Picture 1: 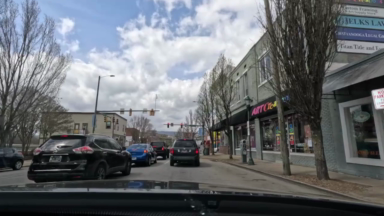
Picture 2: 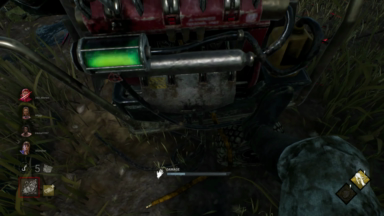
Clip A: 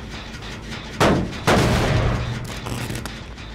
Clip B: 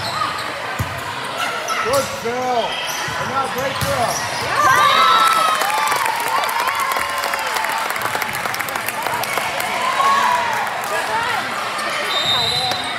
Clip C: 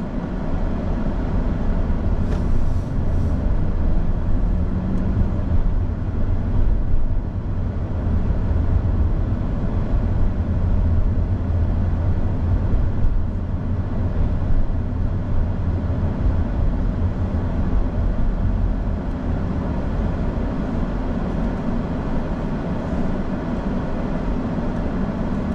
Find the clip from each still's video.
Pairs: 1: C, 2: A